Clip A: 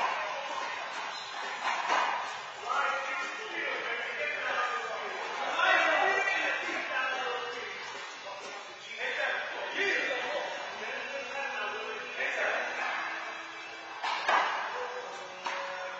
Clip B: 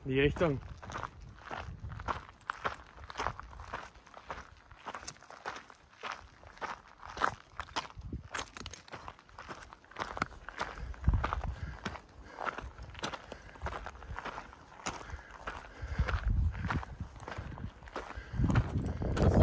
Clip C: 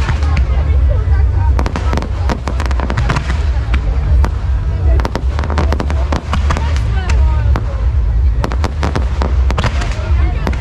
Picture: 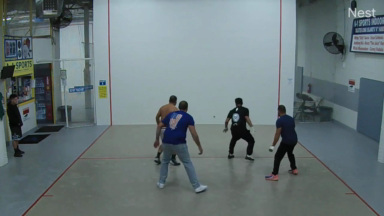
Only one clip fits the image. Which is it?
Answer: A